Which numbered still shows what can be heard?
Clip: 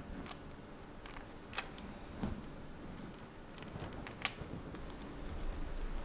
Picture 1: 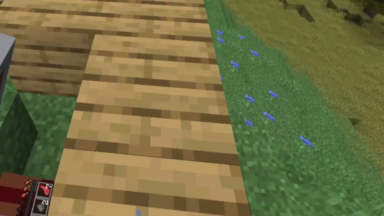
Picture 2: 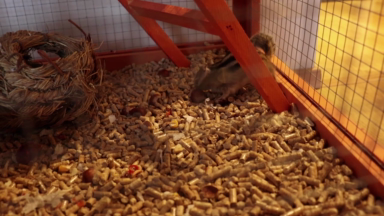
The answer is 2